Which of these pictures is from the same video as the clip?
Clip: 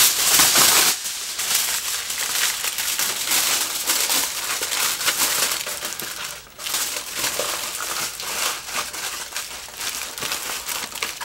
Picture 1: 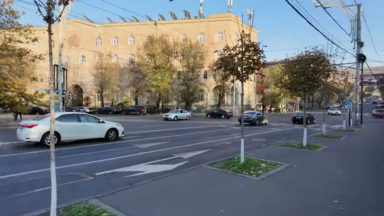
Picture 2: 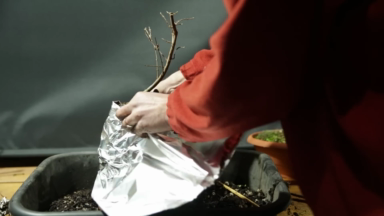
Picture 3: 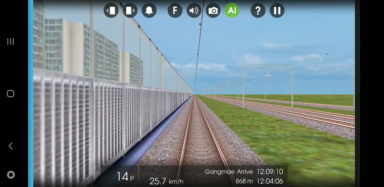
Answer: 2